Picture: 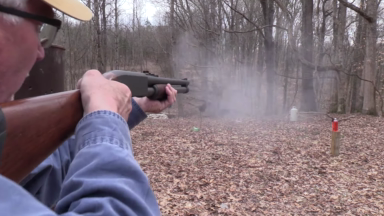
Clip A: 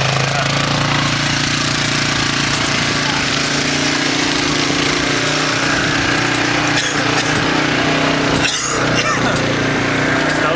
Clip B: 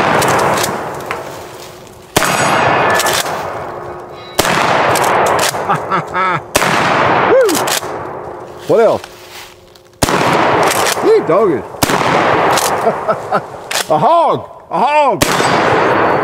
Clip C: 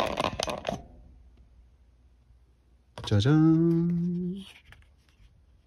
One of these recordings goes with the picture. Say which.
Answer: B